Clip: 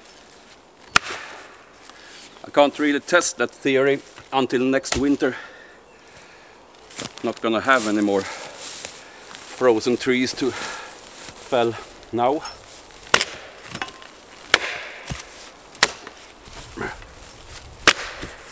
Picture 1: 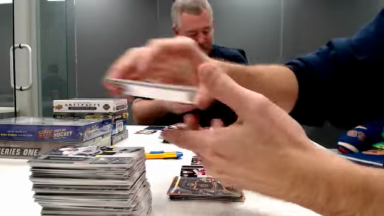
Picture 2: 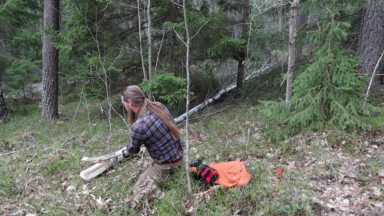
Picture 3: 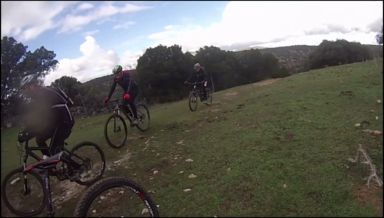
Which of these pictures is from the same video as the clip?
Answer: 2